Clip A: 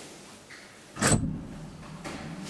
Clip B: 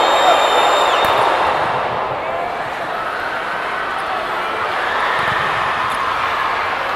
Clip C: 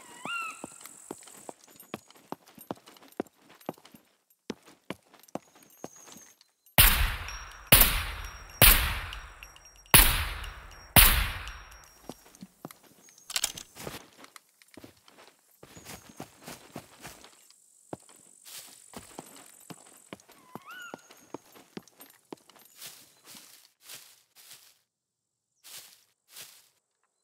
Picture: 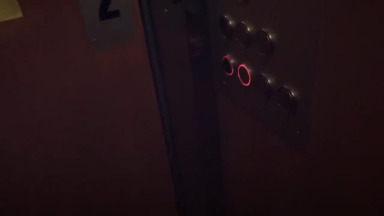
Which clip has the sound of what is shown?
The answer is A